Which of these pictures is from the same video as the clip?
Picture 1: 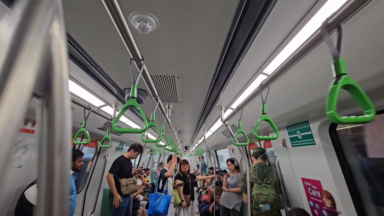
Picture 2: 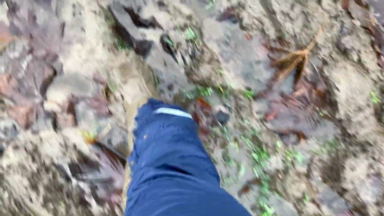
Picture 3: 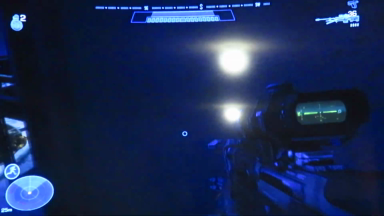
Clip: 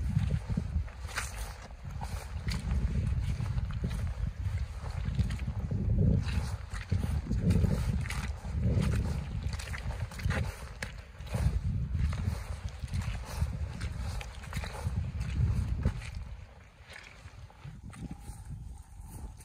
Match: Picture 2